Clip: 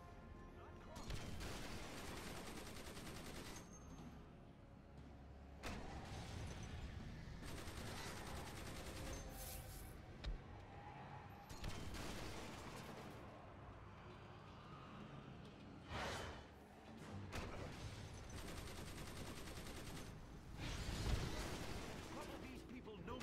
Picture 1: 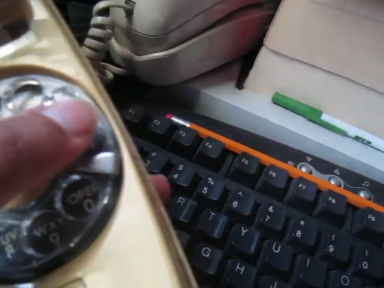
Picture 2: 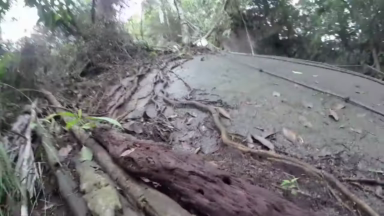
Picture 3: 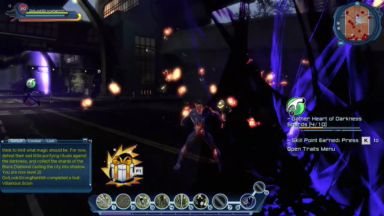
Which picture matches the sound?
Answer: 3